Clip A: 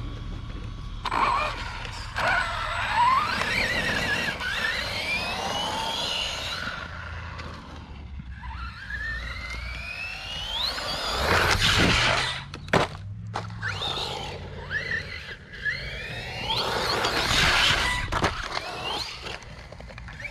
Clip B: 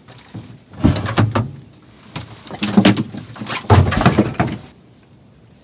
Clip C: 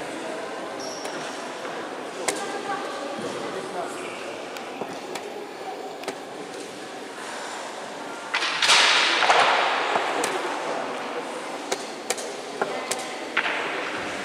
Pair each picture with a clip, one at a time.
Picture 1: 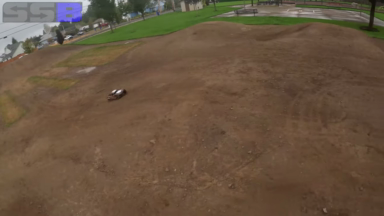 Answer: A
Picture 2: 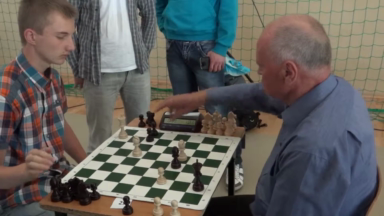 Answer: C